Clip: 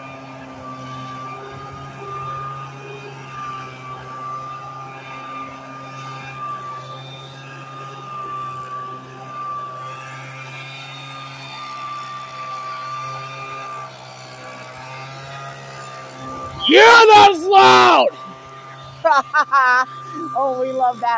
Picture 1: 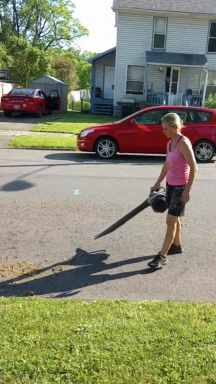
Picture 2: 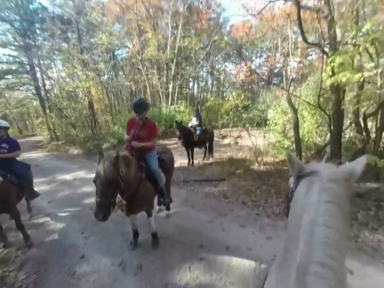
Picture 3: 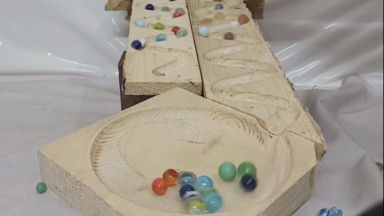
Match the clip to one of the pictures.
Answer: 1